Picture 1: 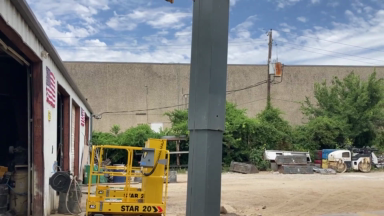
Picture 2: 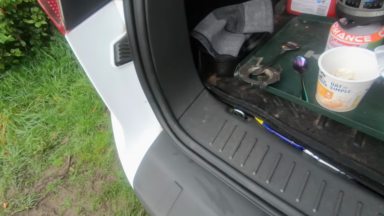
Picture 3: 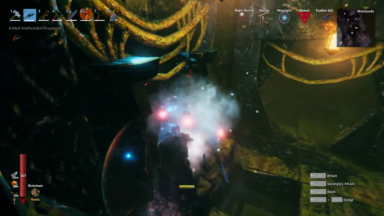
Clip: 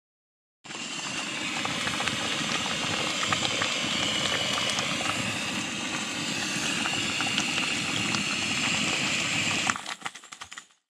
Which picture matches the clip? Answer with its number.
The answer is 2